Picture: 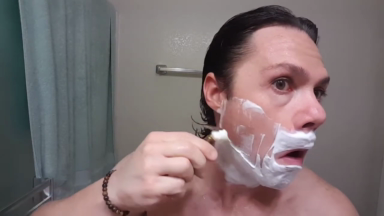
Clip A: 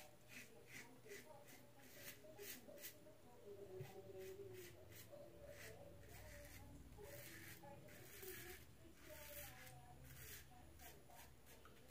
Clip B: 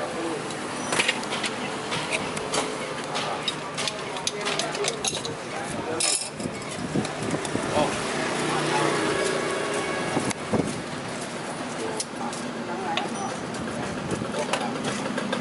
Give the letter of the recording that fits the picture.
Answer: A